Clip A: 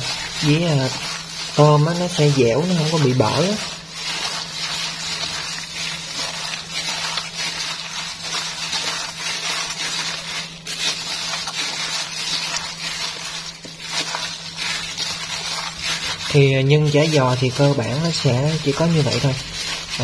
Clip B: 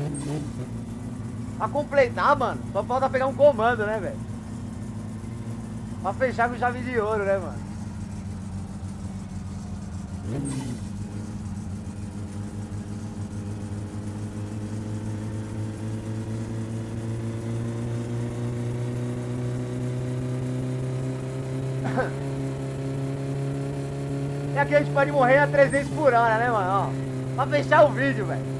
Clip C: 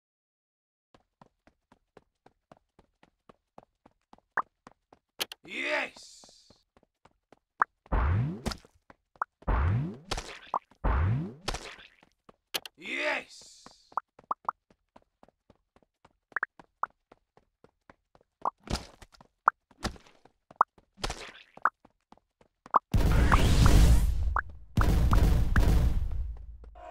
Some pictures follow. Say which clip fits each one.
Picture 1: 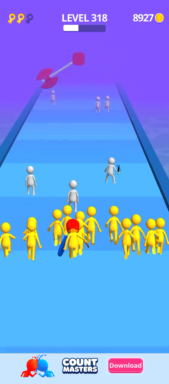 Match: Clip C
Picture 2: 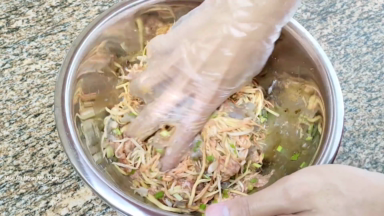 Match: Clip A